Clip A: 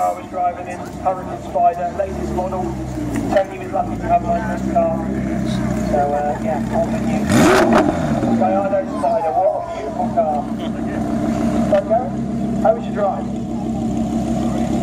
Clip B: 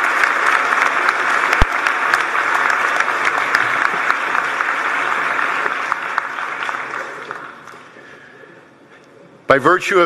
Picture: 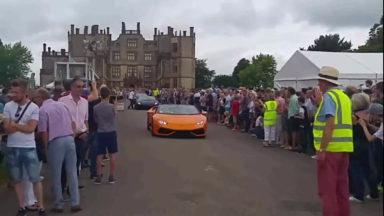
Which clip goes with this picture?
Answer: A